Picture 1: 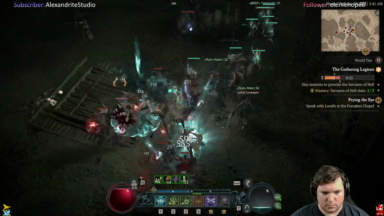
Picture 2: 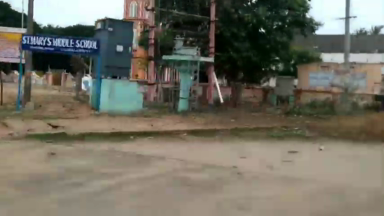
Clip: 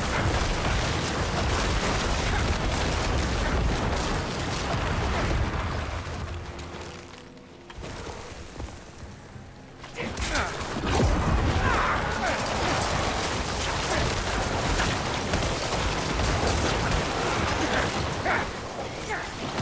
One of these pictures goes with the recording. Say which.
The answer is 1